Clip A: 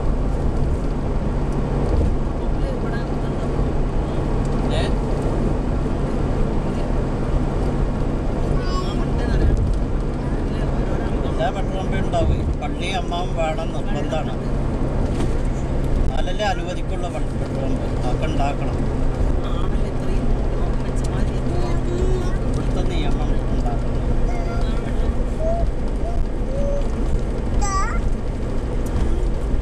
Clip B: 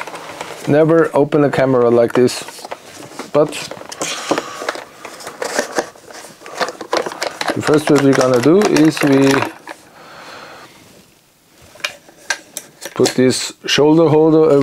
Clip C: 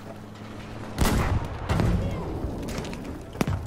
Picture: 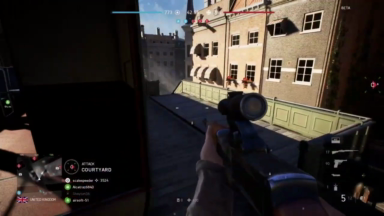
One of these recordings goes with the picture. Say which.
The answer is C